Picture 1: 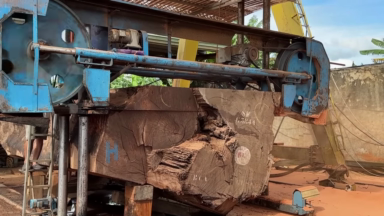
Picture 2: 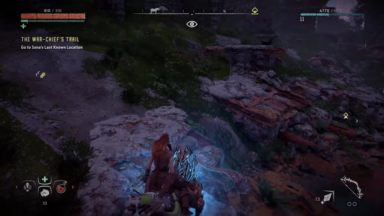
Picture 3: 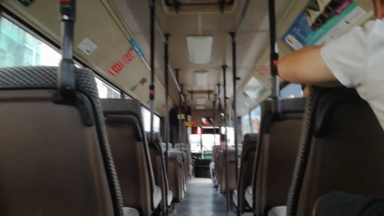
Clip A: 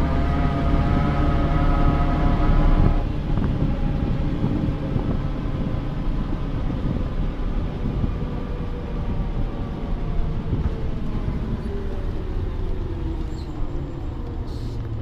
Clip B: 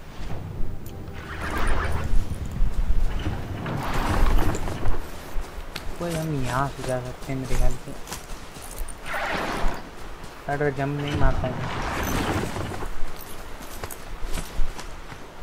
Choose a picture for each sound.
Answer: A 3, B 2